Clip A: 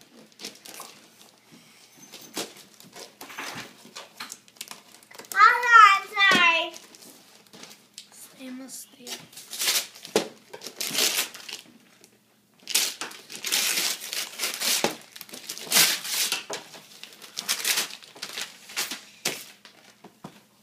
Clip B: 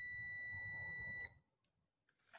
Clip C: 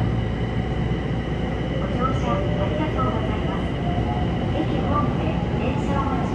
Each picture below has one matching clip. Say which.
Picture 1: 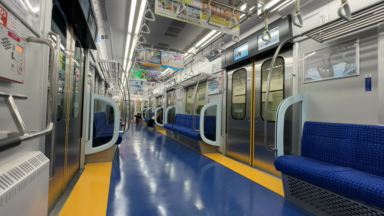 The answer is C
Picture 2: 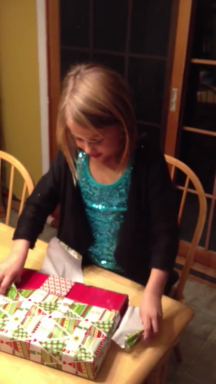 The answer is A